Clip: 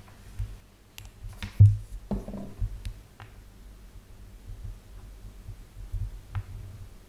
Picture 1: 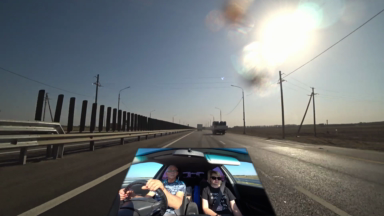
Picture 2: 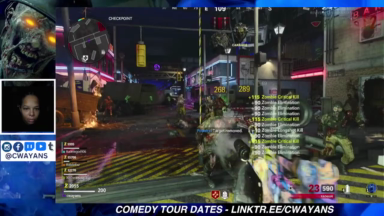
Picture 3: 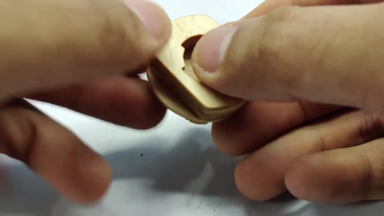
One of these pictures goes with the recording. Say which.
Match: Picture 3